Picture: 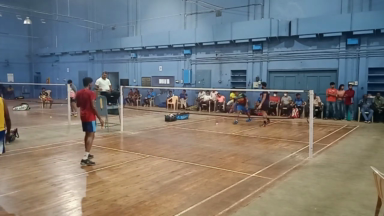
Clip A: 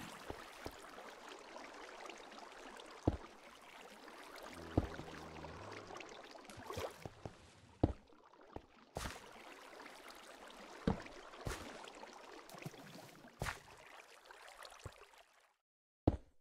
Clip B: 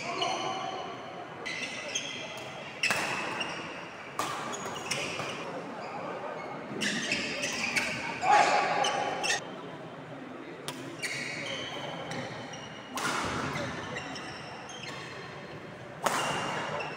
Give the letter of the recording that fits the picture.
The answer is B